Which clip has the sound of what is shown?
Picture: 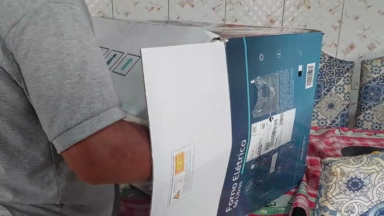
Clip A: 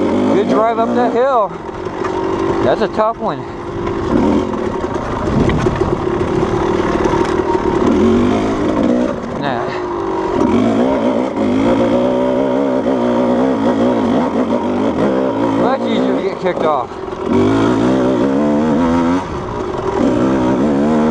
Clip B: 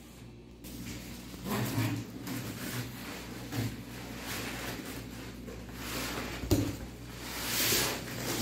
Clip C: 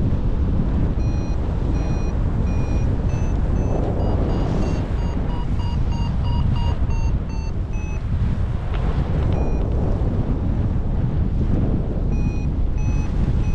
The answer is B